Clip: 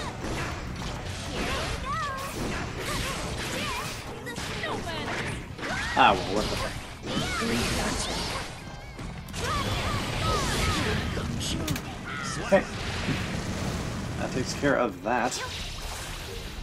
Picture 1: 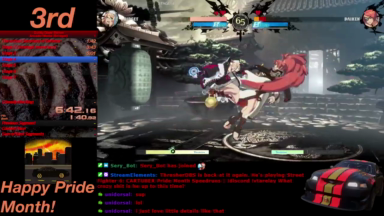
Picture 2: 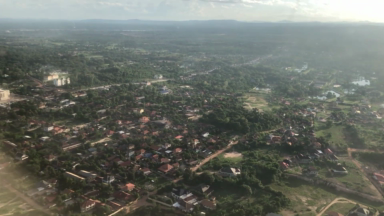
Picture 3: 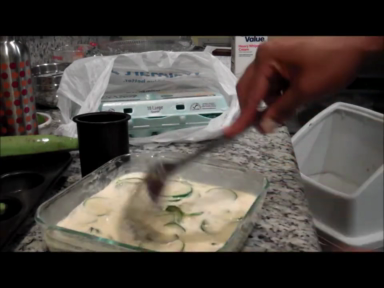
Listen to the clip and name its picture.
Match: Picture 1